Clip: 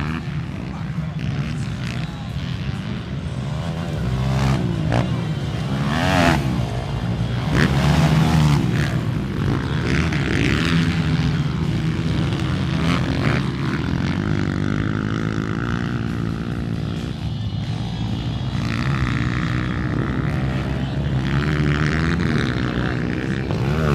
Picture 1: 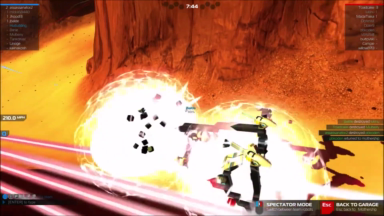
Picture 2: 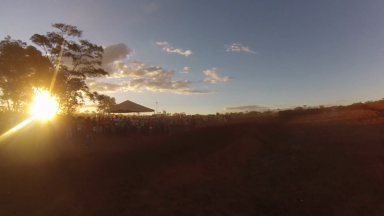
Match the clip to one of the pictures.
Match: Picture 2